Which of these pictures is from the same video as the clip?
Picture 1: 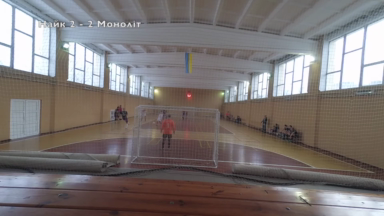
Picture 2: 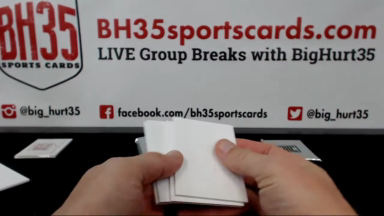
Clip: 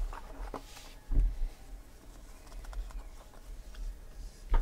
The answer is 2